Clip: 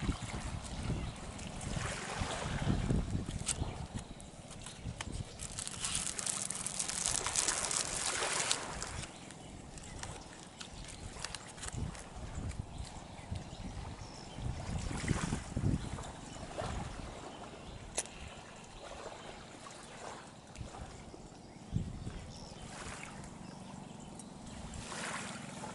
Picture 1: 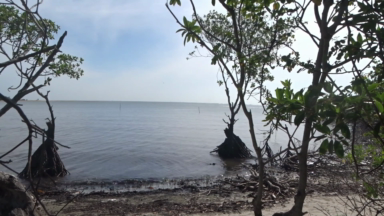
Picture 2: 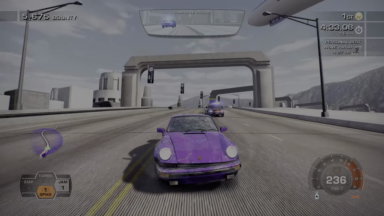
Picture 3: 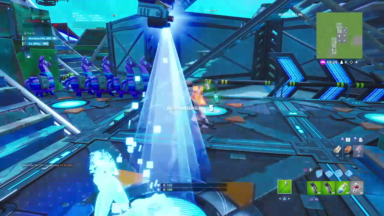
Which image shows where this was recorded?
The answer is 1